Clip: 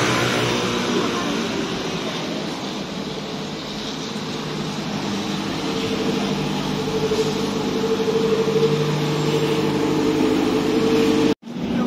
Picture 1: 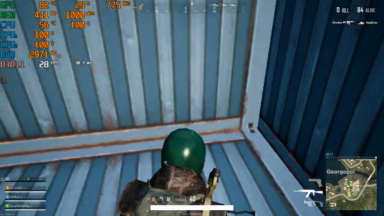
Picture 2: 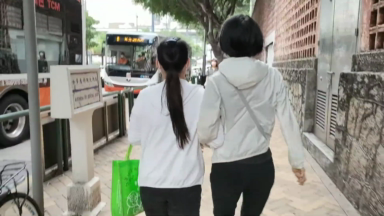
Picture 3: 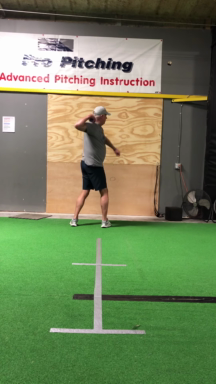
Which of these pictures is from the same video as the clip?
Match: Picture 2